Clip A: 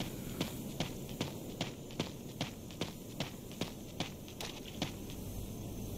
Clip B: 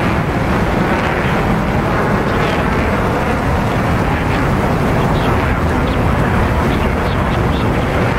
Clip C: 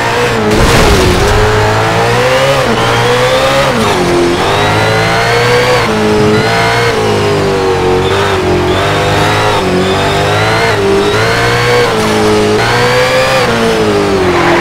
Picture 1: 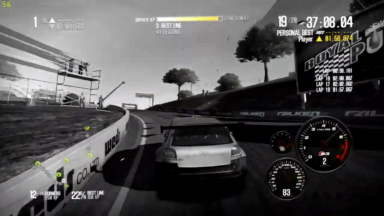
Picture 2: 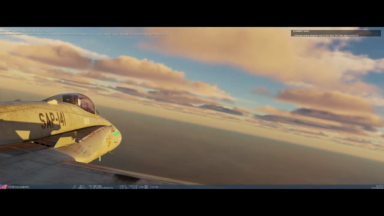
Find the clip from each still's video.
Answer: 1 C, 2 B